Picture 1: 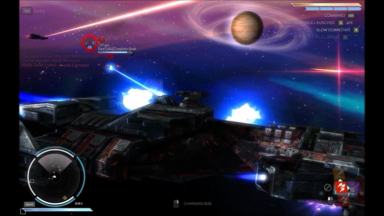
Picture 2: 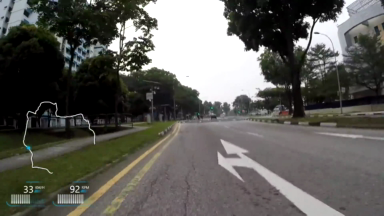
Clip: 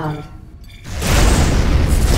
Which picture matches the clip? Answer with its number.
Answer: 1